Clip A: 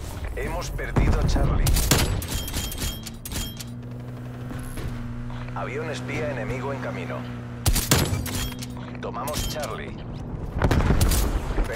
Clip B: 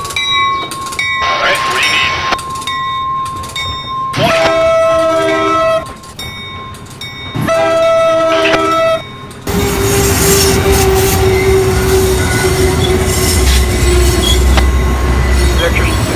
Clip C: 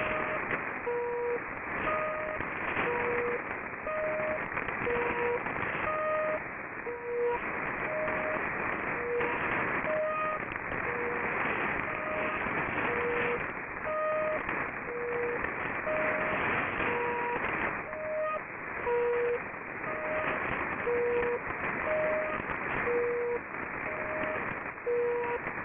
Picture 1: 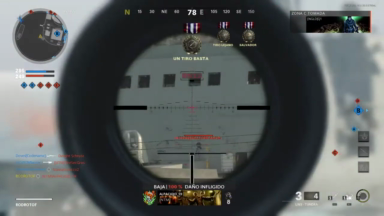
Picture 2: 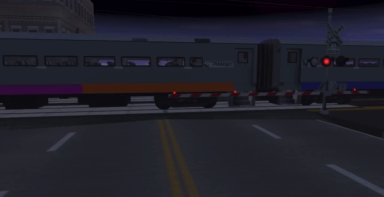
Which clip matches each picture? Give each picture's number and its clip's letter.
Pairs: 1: A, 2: B